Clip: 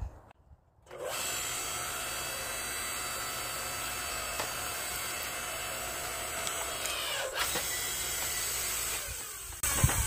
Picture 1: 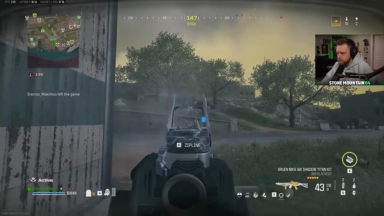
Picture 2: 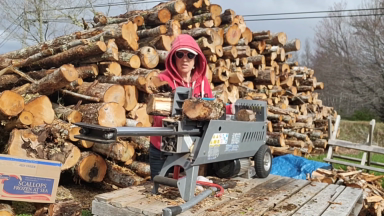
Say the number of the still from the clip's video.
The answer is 2